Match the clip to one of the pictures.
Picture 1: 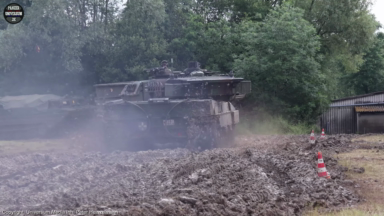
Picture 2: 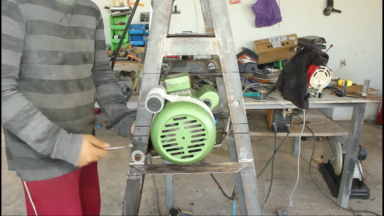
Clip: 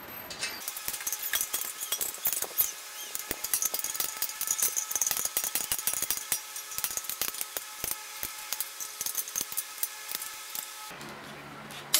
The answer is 2